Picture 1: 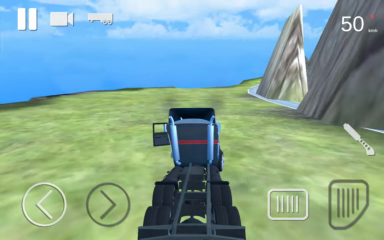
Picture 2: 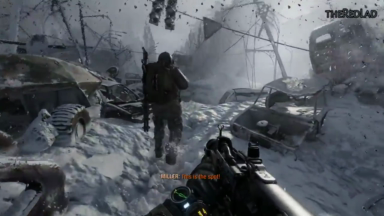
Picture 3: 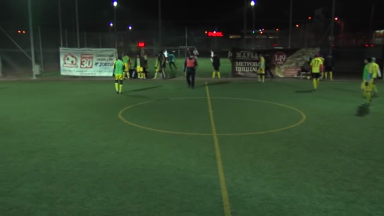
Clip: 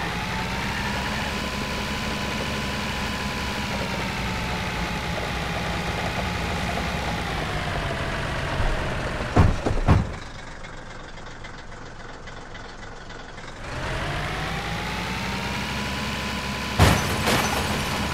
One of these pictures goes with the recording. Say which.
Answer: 1